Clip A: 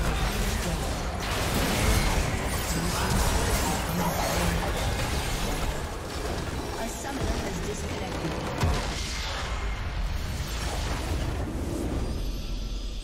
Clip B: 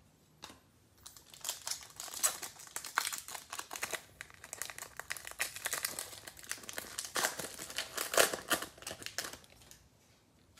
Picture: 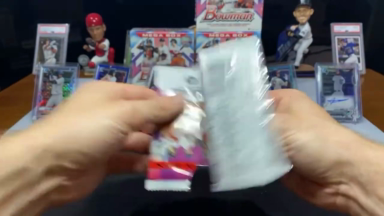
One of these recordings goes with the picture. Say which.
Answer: B